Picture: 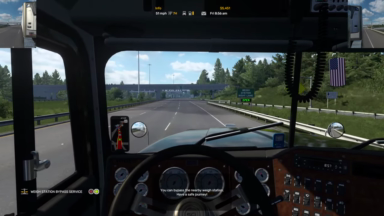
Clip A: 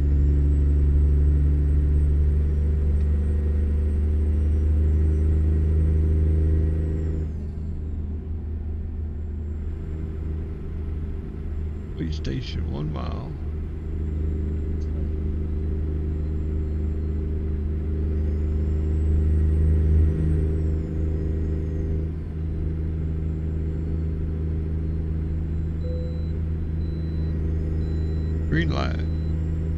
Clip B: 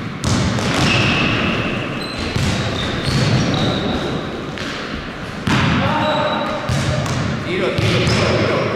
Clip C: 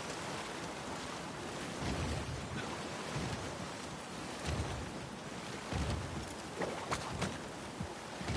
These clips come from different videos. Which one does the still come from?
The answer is A